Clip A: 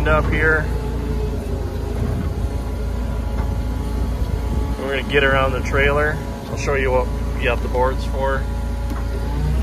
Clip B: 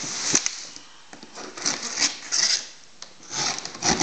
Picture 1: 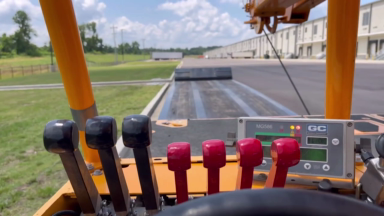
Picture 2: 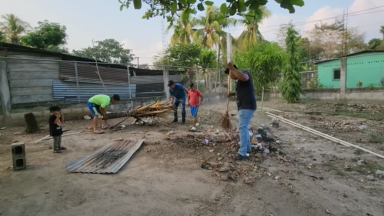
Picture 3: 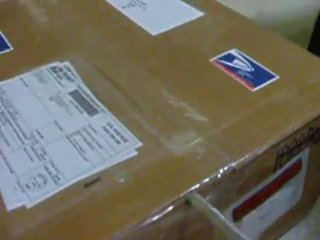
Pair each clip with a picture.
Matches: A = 1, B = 3